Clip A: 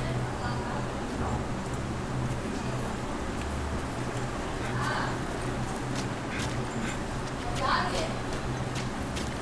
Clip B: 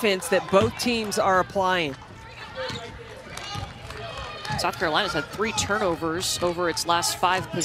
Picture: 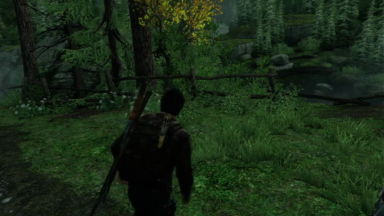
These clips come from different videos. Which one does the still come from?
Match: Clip A